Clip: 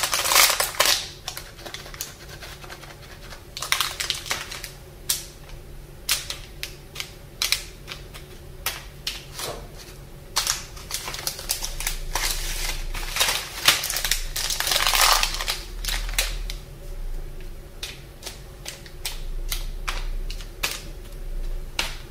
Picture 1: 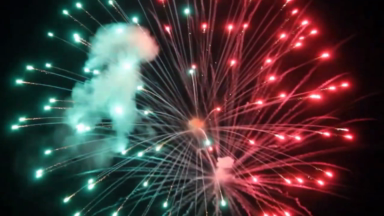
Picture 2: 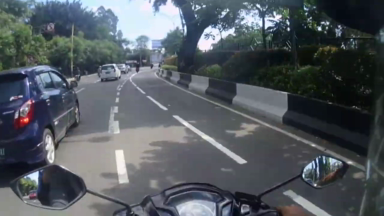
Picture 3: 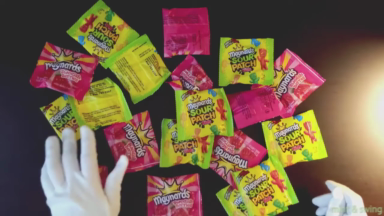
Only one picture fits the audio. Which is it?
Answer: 3